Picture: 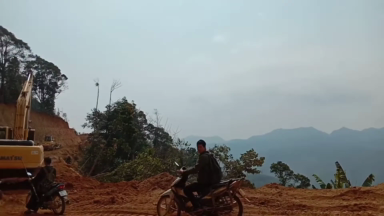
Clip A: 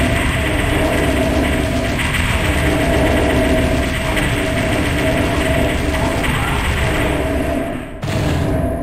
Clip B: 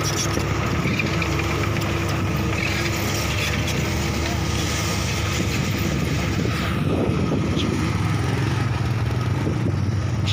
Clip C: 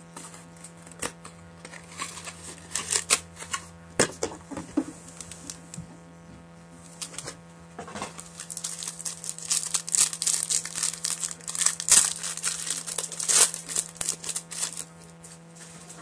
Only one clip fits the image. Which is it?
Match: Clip B